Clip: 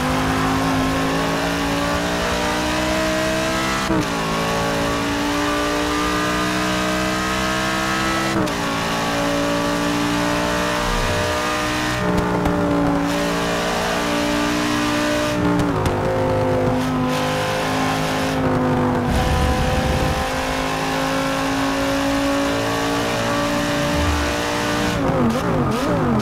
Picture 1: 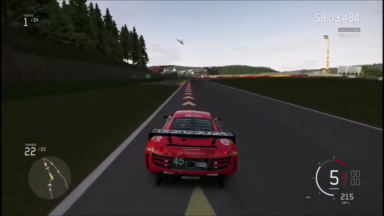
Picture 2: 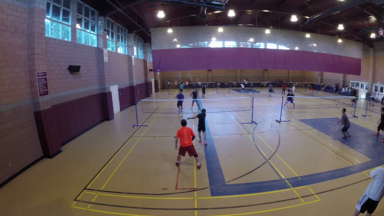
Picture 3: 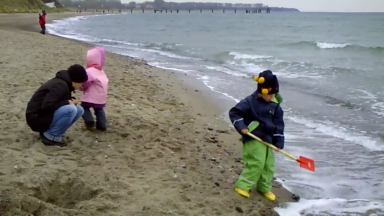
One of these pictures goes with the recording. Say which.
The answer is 1